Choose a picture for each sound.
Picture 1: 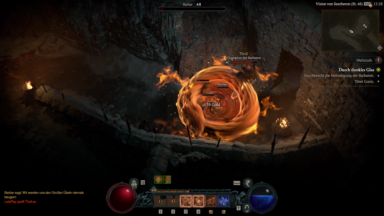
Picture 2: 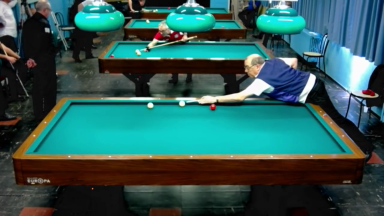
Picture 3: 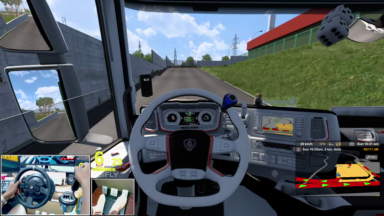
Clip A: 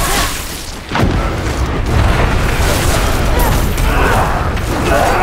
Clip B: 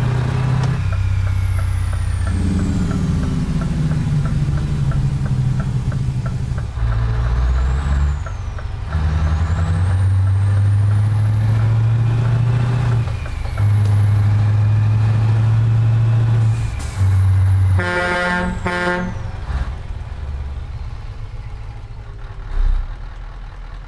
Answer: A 1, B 3